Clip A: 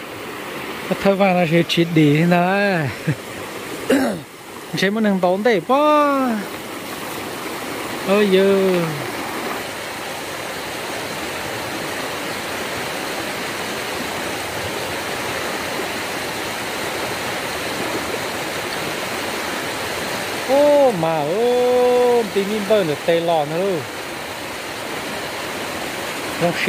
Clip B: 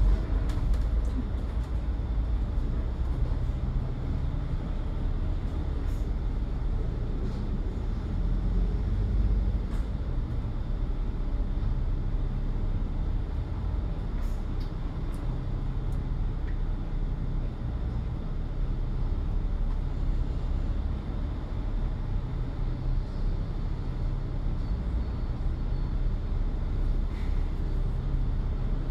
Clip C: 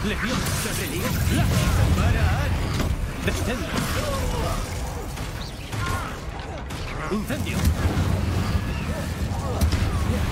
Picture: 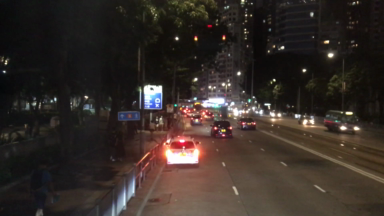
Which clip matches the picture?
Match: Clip B